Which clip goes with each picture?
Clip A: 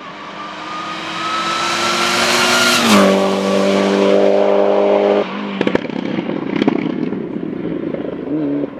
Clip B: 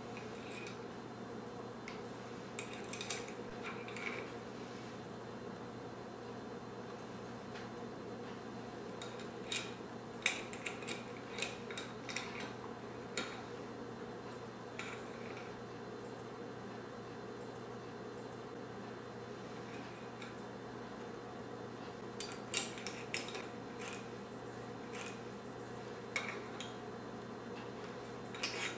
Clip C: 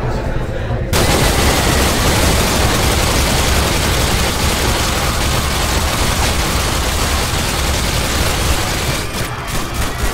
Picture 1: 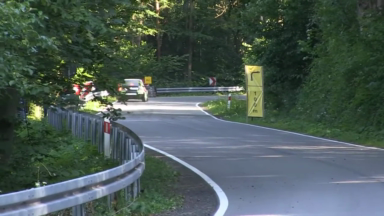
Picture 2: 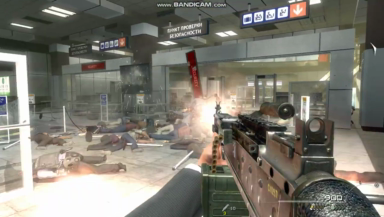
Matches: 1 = A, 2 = C